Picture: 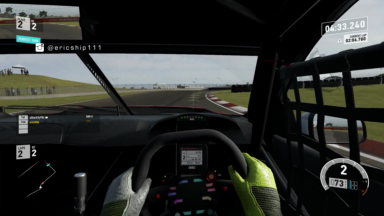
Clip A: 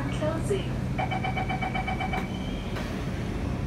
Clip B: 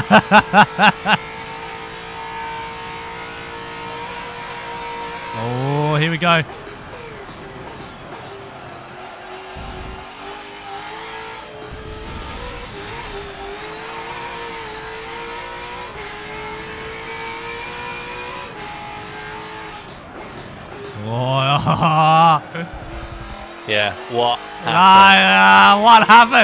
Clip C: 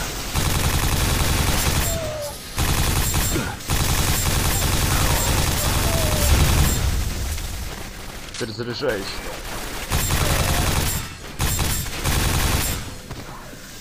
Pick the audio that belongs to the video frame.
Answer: B